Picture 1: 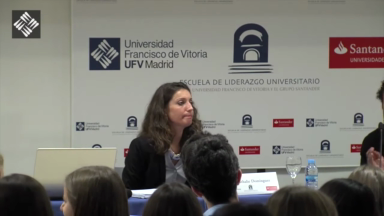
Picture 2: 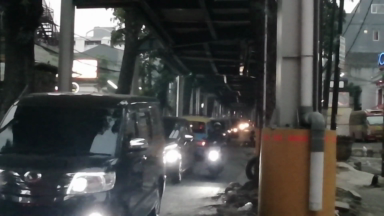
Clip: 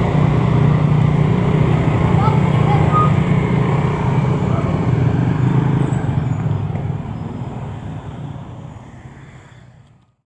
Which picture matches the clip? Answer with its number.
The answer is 2